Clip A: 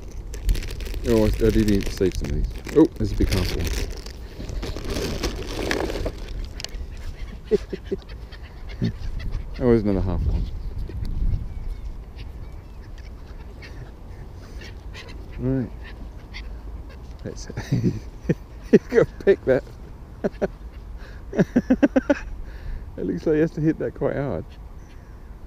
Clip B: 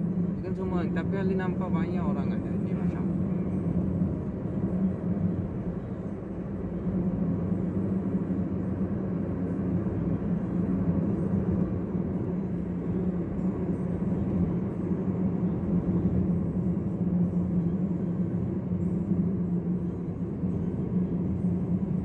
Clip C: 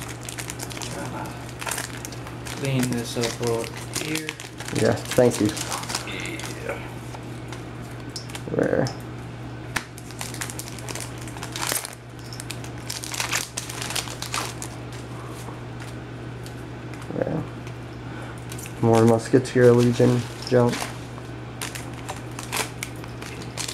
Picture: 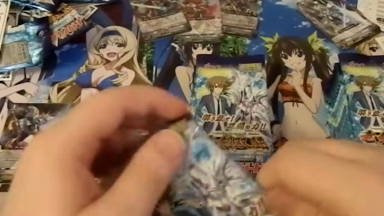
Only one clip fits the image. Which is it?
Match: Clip C